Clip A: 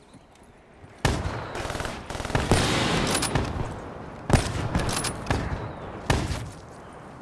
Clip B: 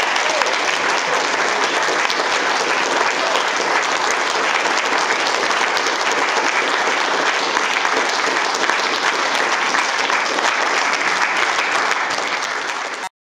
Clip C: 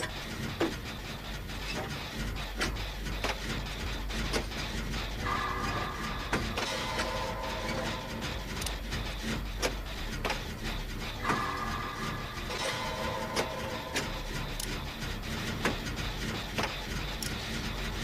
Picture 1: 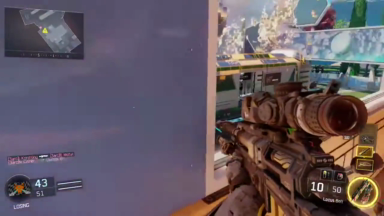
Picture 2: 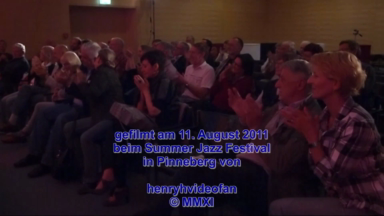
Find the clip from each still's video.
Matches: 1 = A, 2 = B